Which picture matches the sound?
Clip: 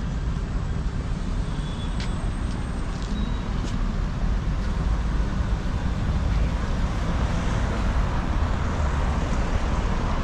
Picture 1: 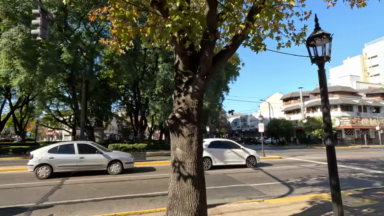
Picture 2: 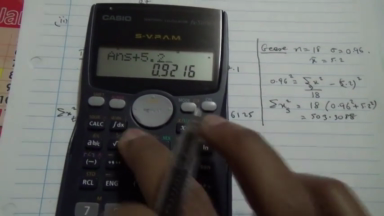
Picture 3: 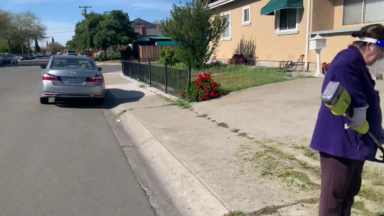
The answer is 1